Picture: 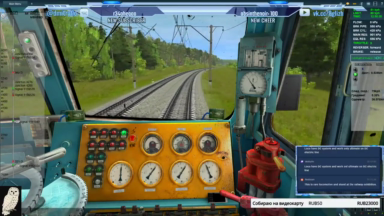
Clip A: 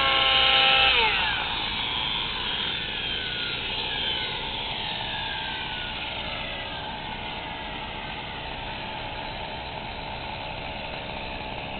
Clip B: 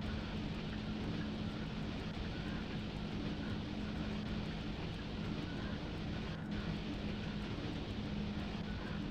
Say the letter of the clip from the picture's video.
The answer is B